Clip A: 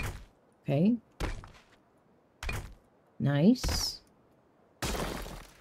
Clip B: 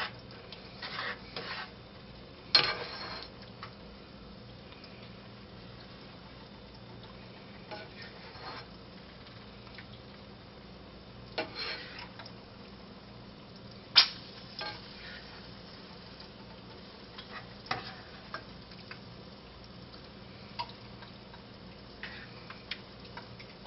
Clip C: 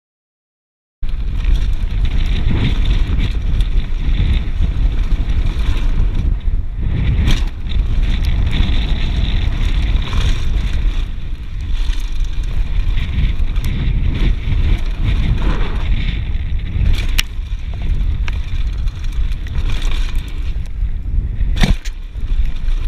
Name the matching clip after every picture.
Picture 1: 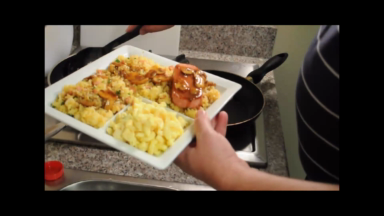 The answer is B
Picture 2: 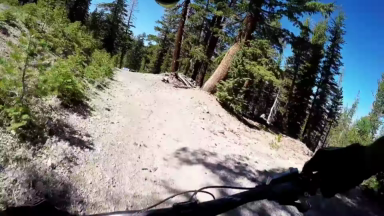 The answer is C